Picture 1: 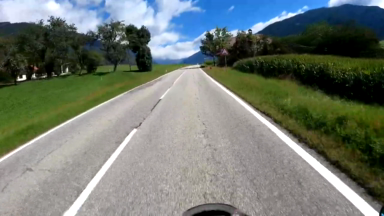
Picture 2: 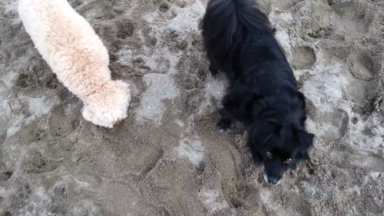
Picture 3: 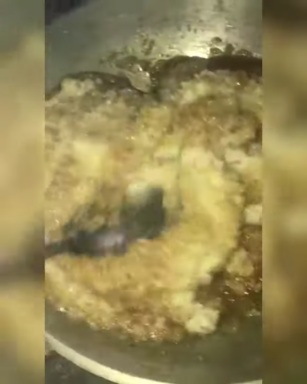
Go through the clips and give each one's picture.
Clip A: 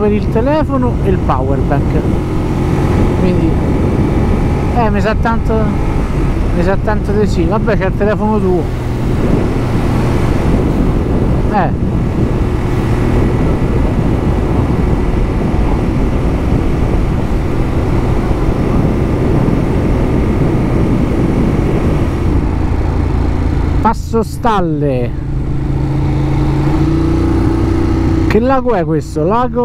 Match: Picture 1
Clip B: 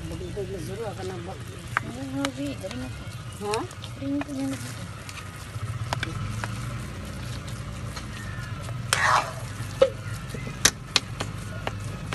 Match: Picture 3